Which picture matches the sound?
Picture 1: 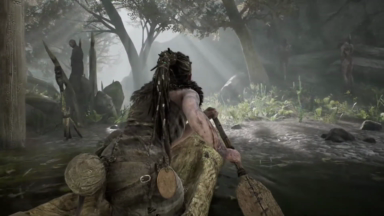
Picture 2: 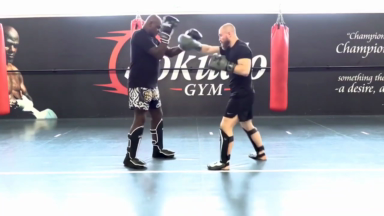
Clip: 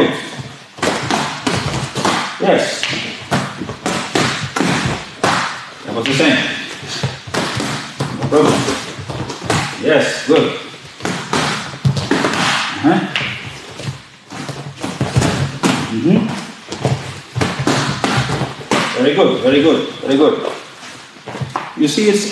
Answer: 2